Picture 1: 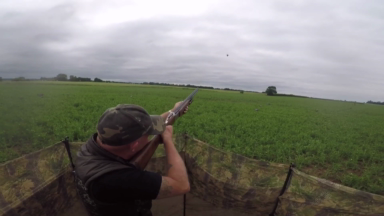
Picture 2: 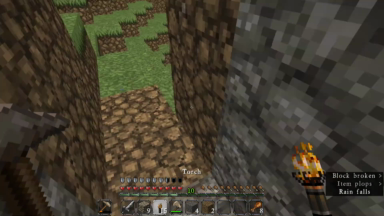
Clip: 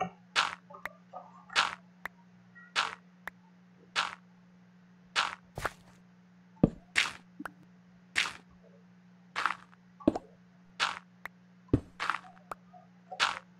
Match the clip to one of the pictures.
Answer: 2